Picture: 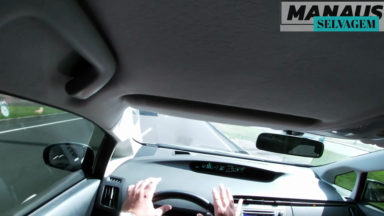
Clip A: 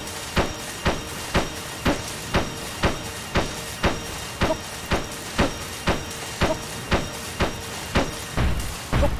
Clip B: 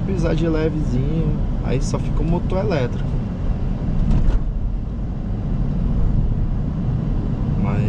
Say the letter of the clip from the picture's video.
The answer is B